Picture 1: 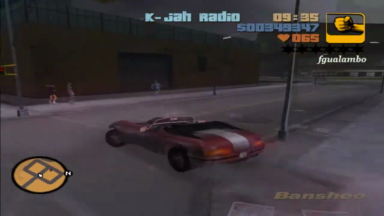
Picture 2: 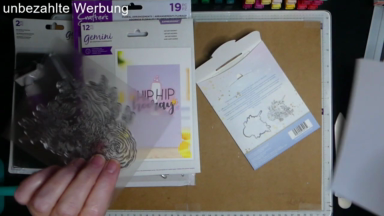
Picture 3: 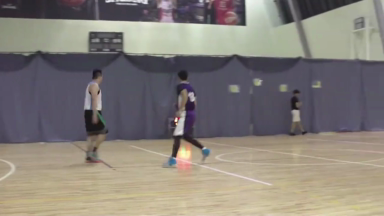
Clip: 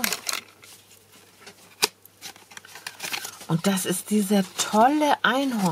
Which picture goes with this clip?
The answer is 2